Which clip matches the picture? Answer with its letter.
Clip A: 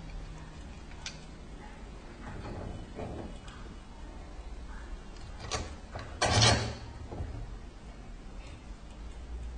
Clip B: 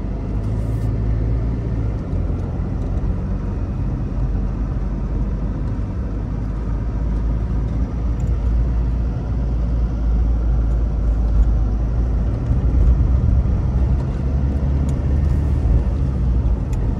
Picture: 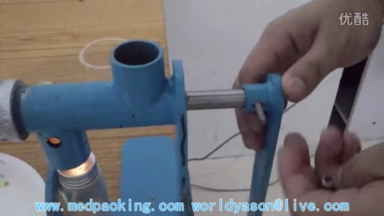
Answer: A